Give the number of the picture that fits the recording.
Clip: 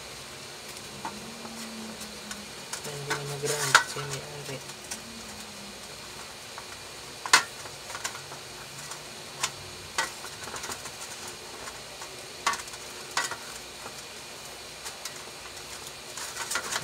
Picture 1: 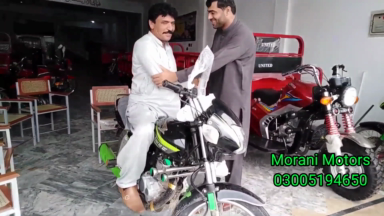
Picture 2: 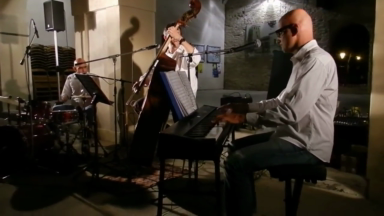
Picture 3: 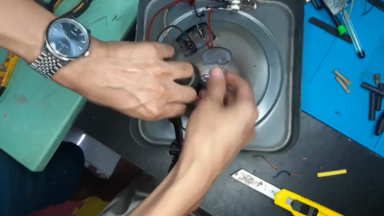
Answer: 3